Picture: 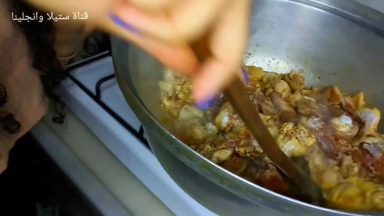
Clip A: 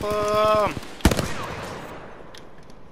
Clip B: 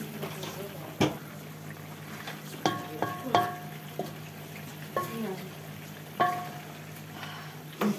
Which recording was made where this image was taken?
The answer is B